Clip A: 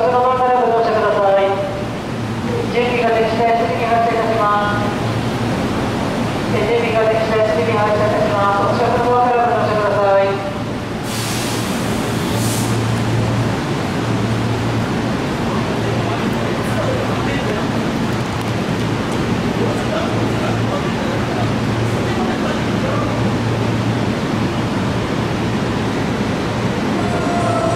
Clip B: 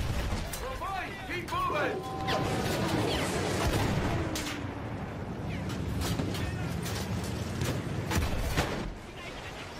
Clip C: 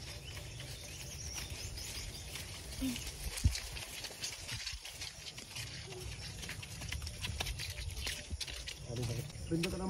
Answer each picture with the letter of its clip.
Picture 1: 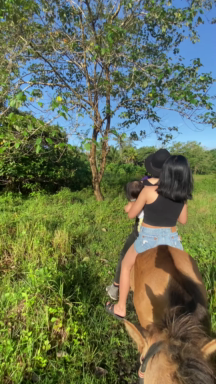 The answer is C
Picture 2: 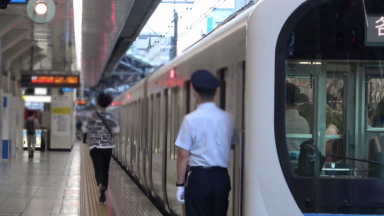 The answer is A